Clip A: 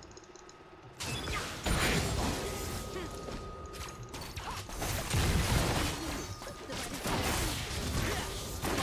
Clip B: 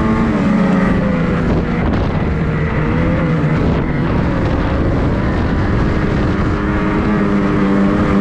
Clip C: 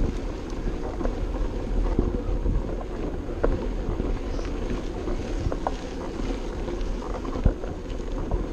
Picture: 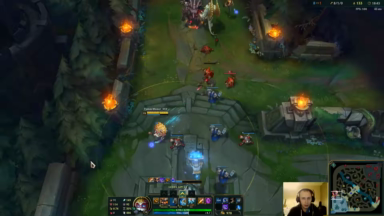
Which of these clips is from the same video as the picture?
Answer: A